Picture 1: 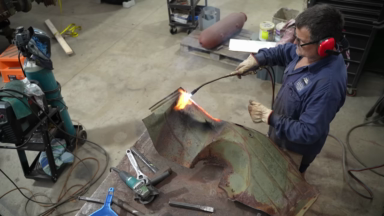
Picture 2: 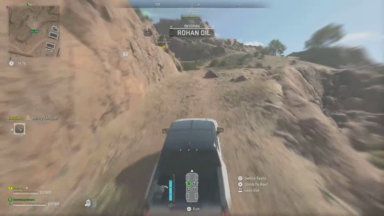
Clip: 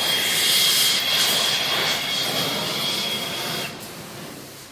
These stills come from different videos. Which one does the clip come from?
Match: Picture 1